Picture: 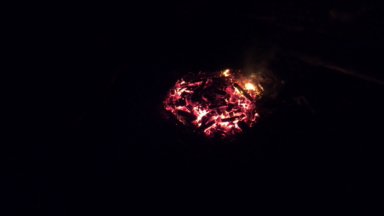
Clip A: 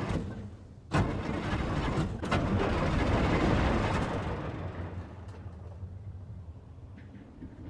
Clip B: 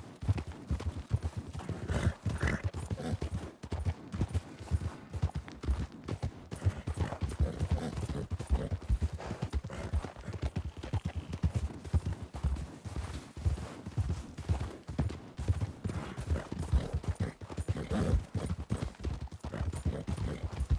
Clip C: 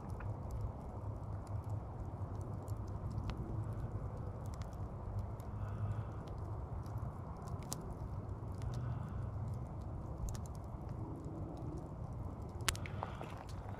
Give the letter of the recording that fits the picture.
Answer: C